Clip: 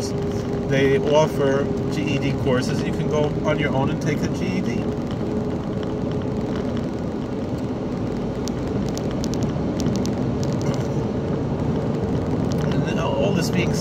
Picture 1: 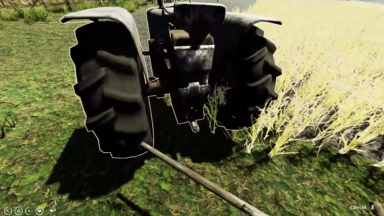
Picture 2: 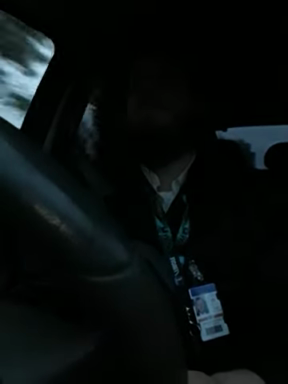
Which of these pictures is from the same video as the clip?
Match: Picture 2